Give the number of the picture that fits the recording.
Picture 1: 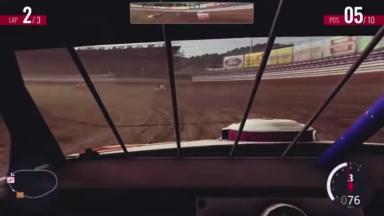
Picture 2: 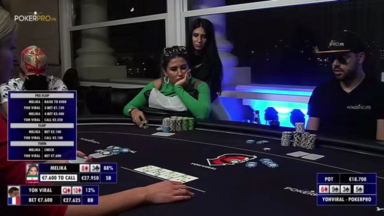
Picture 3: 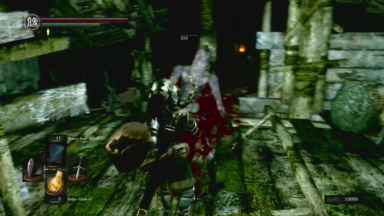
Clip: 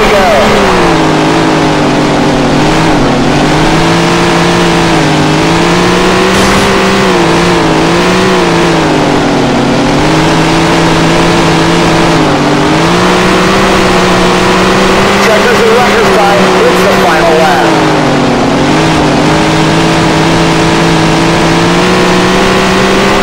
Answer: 1